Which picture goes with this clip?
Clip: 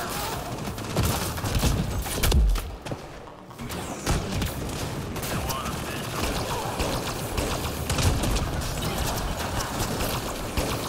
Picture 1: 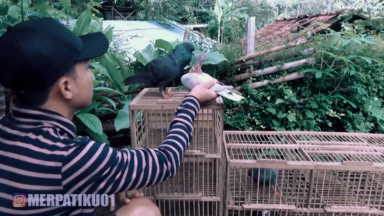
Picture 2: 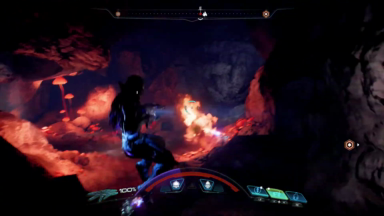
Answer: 2